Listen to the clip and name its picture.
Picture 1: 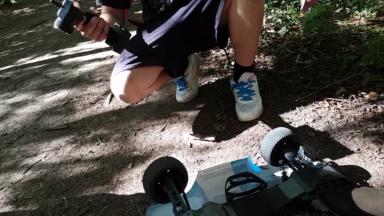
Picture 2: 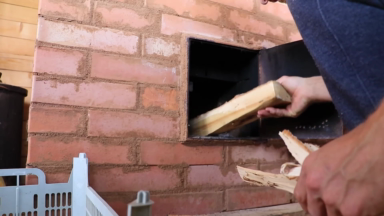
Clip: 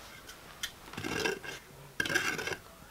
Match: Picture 2